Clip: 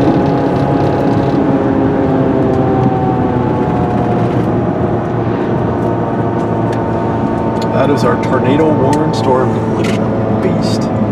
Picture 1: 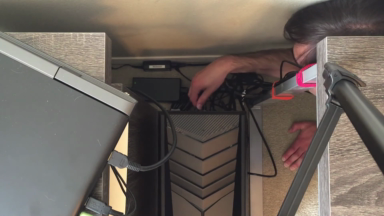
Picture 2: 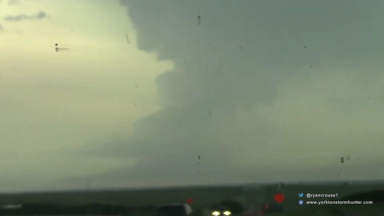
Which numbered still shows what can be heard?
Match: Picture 2